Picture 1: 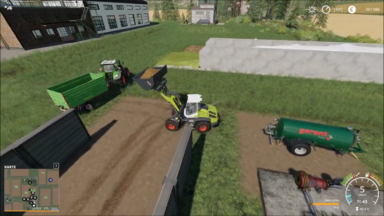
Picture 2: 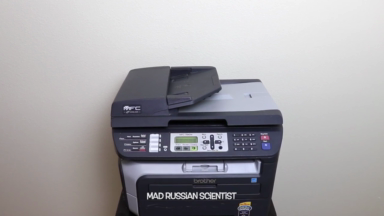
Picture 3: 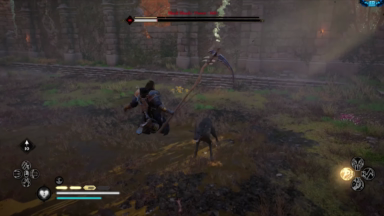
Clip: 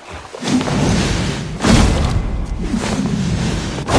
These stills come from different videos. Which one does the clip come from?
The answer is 3